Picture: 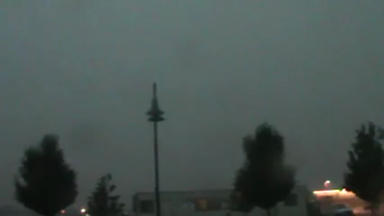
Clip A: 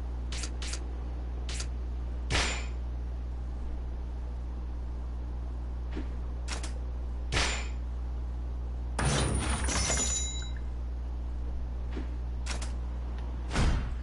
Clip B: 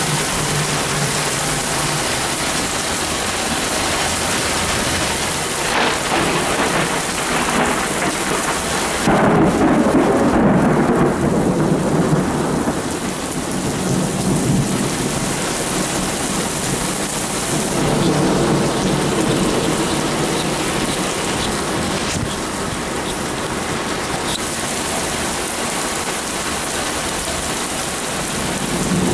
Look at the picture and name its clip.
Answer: B